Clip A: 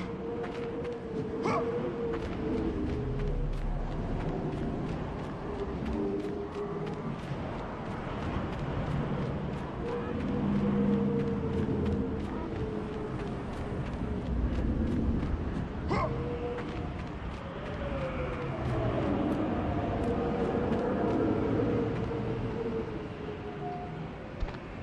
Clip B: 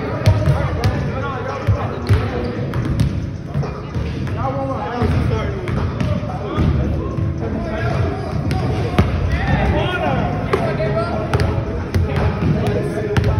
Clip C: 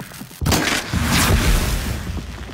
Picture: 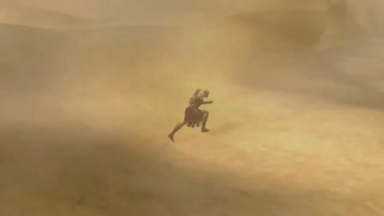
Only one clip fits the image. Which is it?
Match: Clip A